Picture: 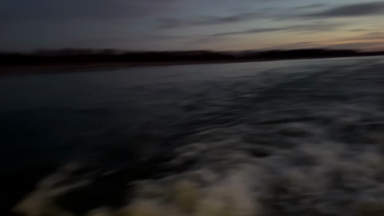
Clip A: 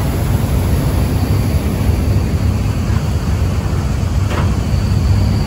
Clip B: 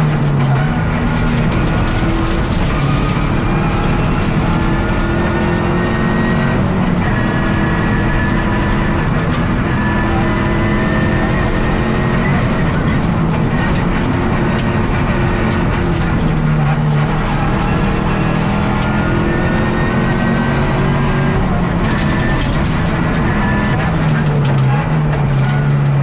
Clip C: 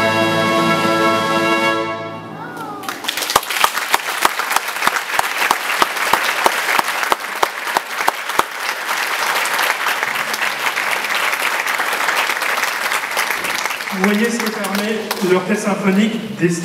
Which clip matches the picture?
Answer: A